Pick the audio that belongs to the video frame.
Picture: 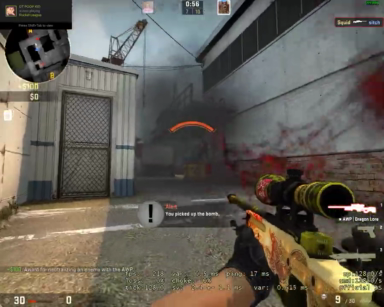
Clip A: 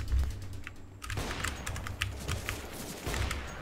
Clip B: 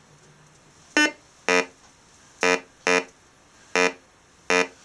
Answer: A